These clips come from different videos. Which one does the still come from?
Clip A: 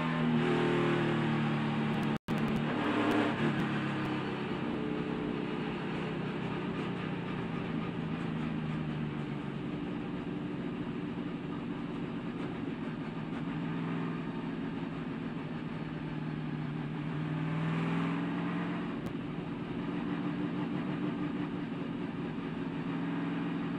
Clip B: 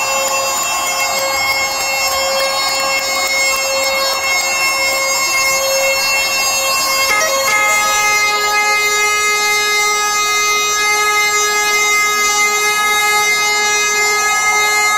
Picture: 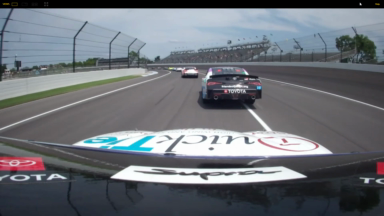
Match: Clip A